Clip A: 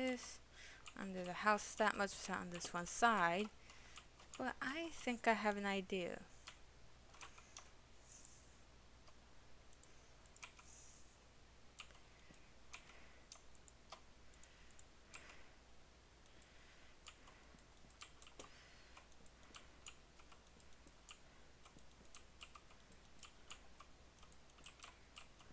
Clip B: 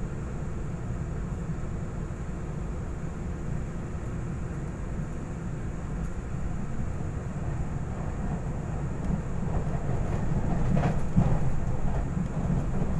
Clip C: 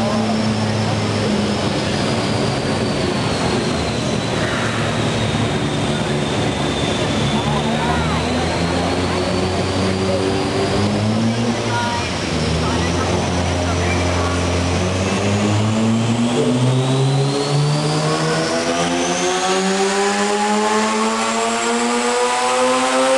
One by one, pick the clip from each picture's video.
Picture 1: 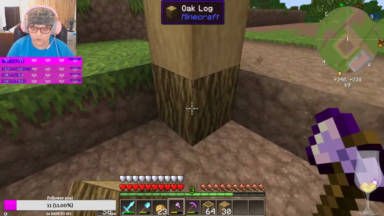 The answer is A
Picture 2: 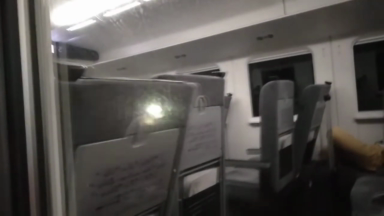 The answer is B